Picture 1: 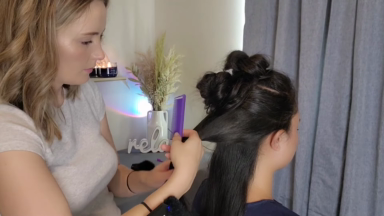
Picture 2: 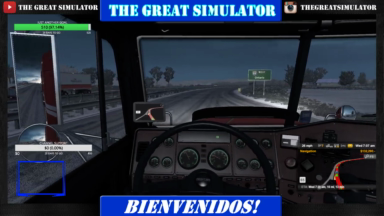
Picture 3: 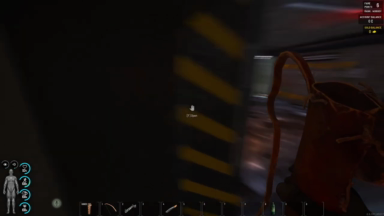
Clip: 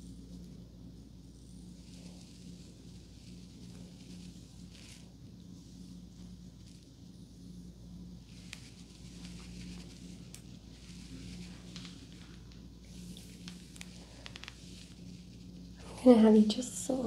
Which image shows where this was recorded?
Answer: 1